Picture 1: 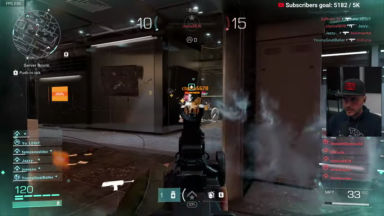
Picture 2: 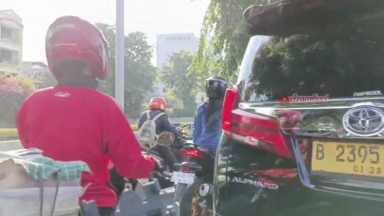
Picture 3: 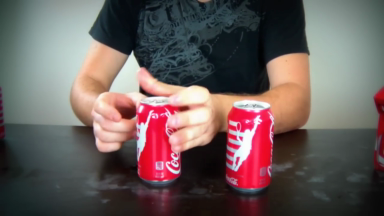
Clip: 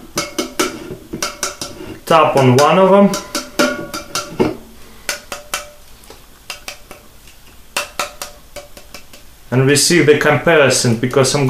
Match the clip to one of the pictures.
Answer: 3